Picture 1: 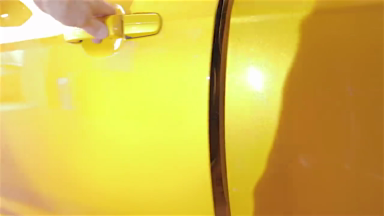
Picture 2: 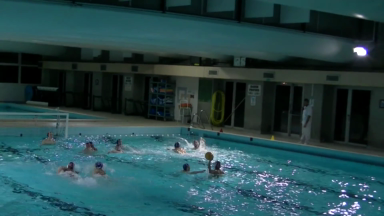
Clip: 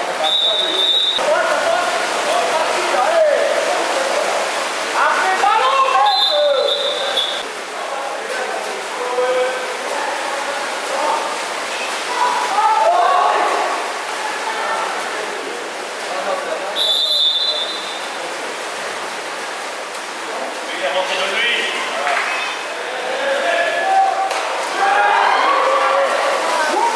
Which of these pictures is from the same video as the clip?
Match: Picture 2